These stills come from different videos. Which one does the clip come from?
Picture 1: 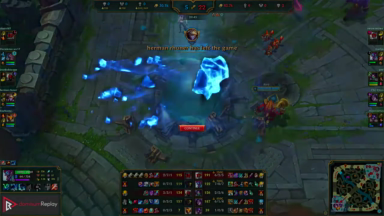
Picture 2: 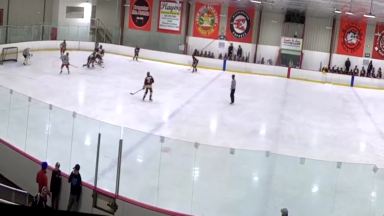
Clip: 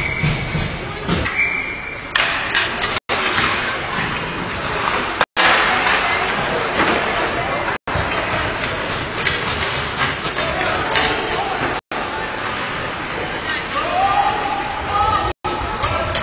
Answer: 2